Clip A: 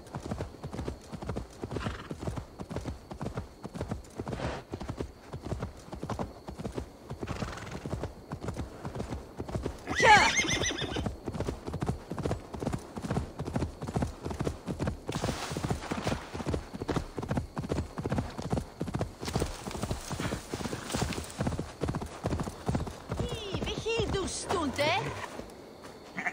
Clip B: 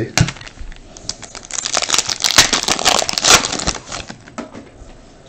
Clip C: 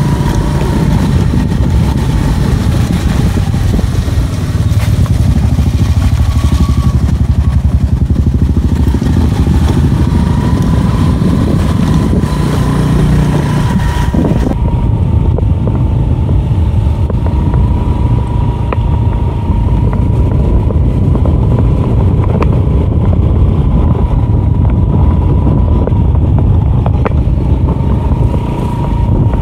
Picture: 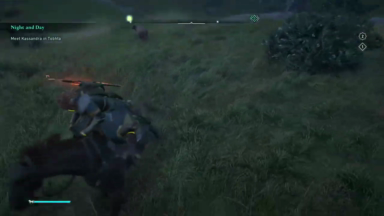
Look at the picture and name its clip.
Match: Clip A